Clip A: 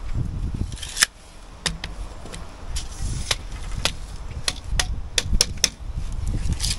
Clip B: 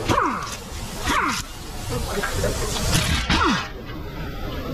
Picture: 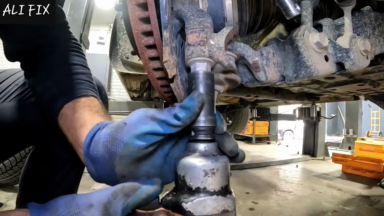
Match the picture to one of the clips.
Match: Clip B